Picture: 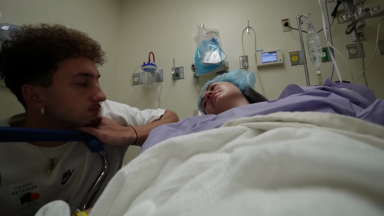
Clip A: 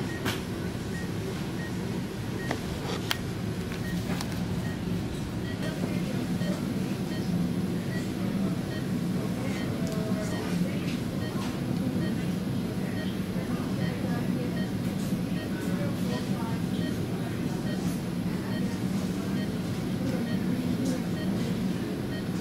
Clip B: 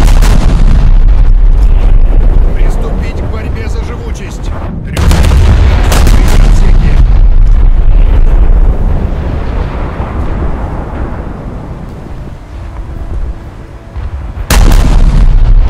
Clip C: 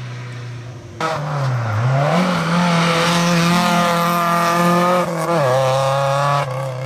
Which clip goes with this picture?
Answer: A